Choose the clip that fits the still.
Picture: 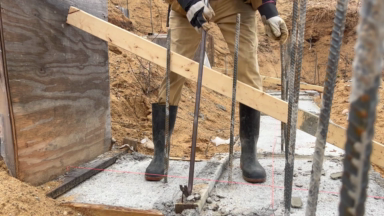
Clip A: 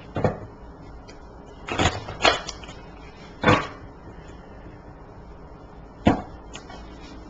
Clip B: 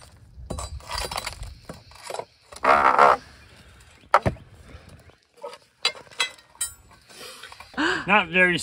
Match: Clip B